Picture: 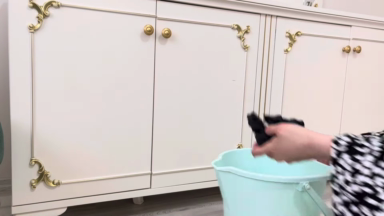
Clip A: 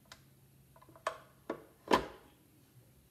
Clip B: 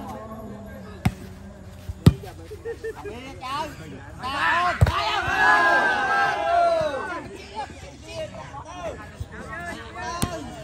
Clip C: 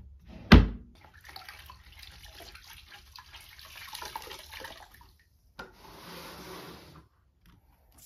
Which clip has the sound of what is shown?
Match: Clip C